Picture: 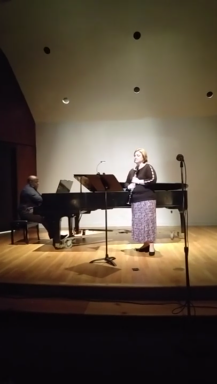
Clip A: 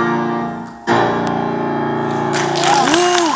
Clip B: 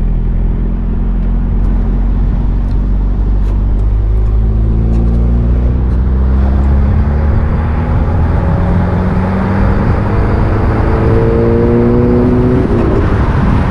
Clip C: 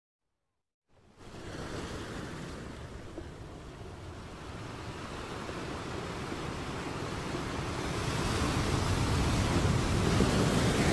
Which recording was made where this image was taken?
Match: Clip A